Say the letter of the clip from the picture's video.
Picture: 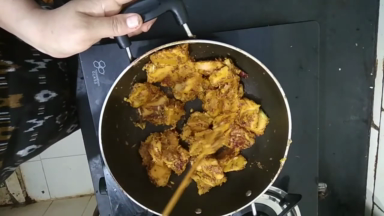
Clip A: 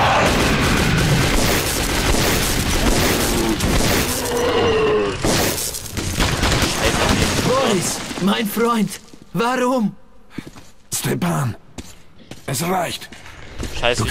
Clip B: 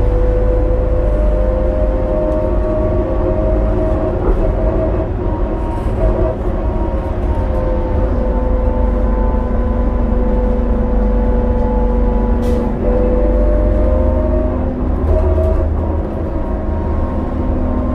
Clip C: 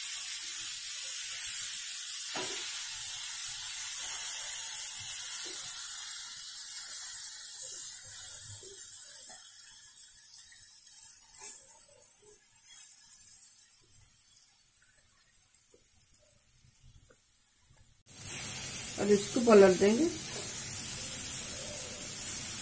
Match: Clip C